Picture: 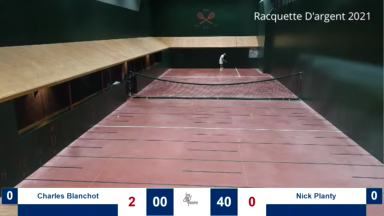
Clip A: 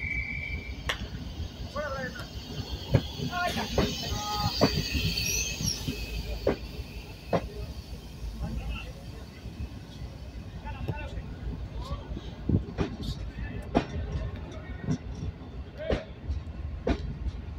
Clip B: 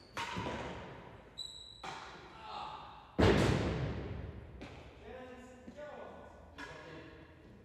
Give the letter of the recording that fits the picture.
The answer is B